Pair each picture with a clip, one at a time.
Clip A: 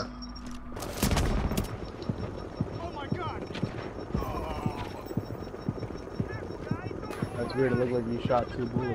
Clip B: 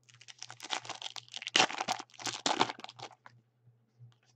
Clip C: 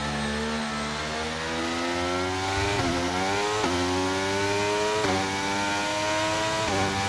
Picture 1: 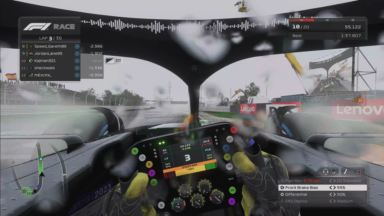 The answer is C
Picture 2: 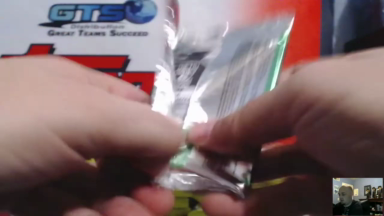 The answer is B